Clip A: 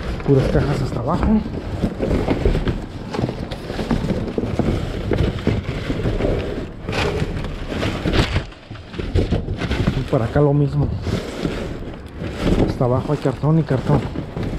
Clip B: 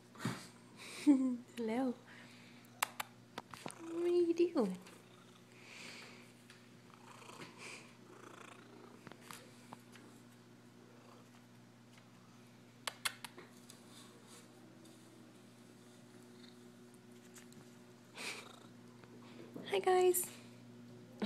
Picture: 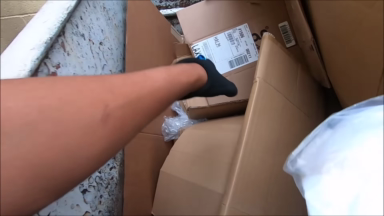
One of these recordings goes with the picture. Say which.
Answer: A